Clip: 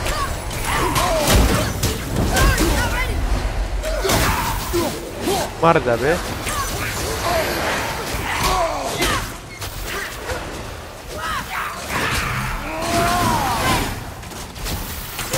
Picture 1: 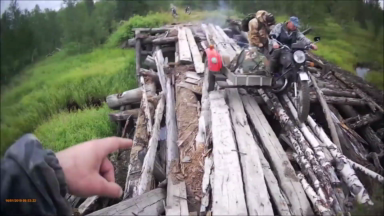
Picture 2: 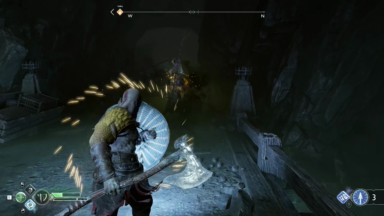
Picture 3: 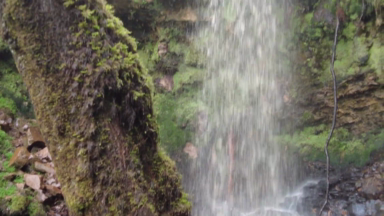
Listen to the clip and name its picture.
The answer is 2